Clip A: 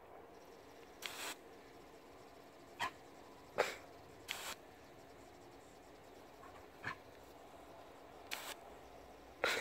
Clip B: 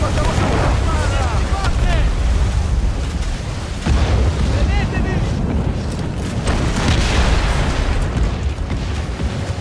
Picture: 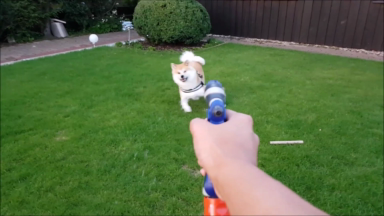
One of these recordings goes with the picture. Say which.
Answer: A